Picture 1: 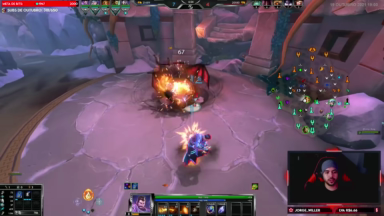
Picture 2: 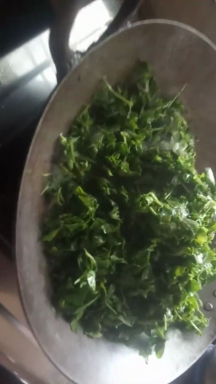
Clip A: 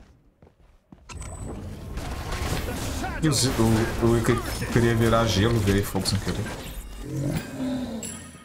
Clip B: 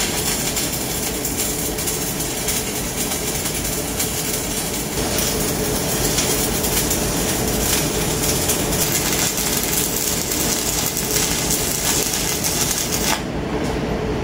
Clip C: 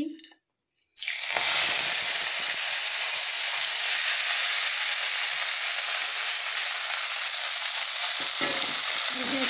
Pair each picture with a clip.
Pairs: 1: A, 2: C